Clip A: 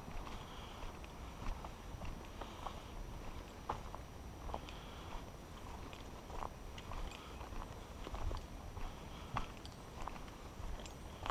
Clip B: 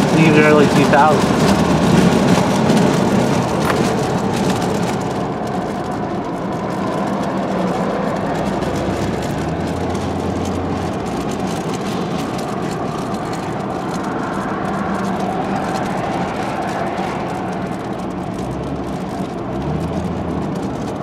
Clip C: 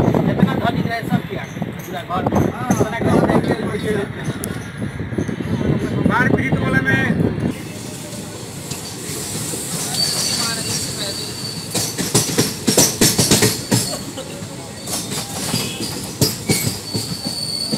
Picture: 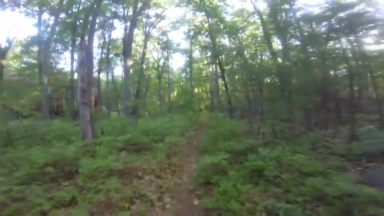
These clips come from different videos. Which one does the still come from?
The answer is A